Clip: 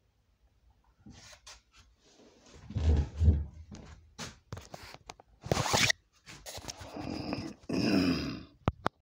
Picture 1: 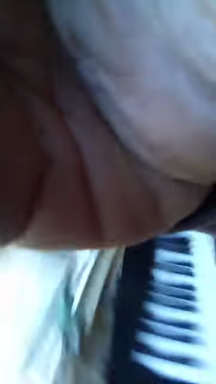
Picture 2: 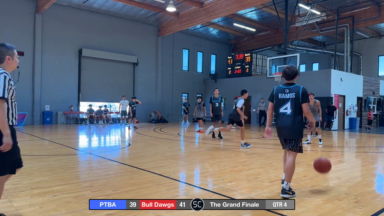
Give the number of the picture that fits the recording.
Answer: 1